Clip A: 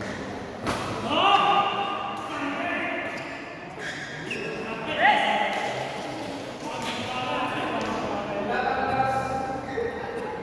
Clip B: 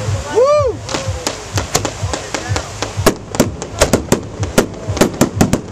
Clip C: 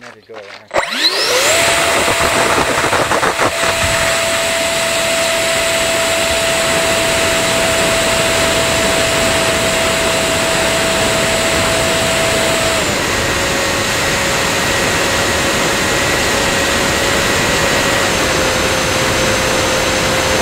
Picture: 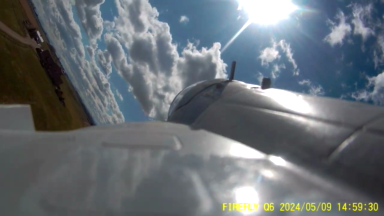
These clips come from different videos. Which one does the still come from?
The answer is C